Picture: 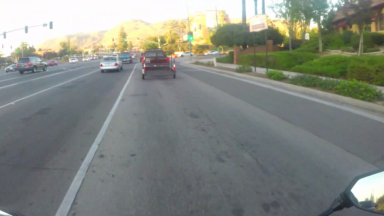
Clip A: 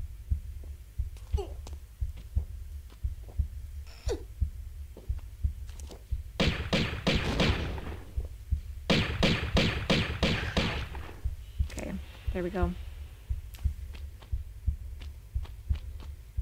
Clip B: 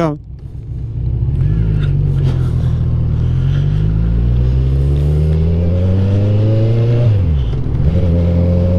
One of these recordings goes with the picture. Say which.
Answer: B